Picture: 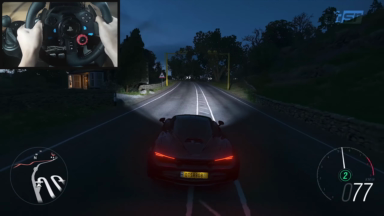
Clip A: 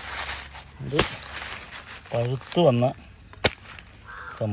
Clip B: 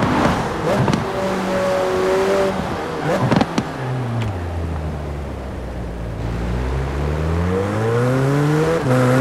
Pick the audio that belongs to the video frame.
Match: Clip B